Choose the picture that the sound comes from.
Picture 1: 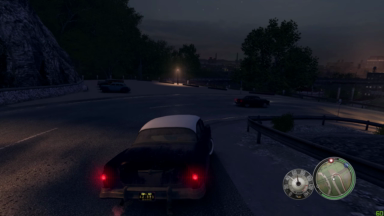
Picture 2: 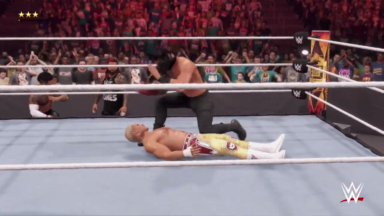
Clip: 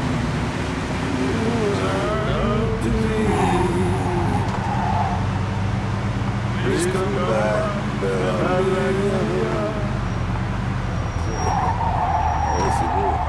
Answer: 1